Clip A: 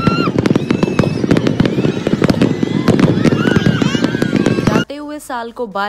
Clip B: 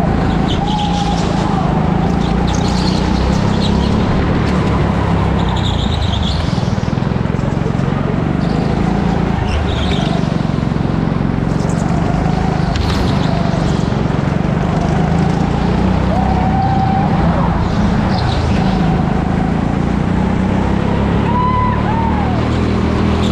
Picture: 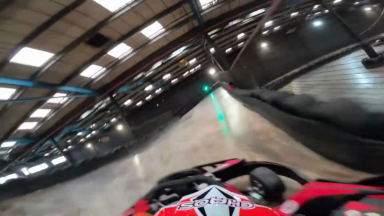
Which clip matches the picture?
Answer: B